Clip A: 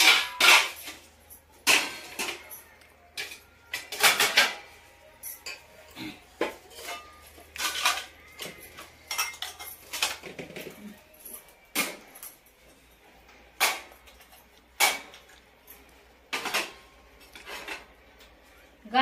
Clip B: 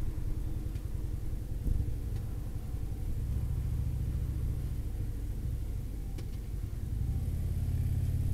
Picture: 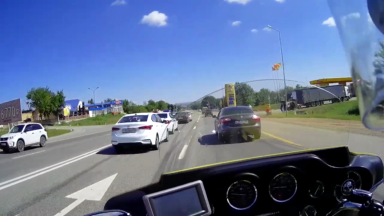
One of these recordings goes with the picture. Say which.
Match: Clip B